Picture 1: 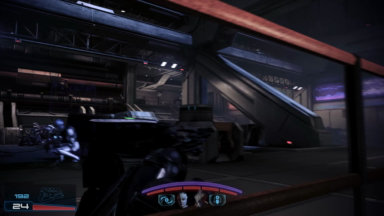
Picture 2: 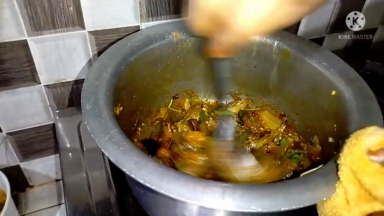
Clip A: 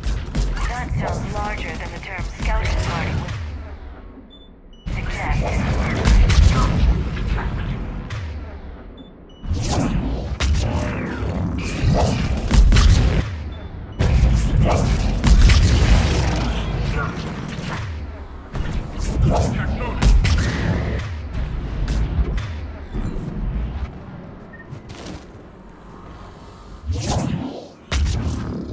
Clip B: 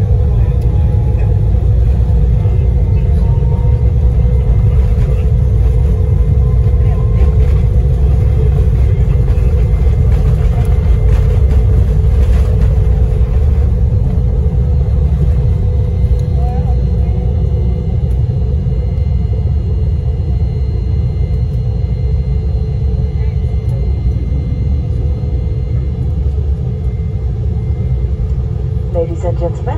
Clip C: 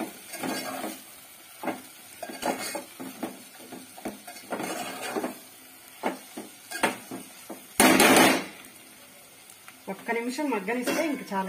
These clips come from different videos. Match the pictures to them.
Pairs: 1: A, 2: C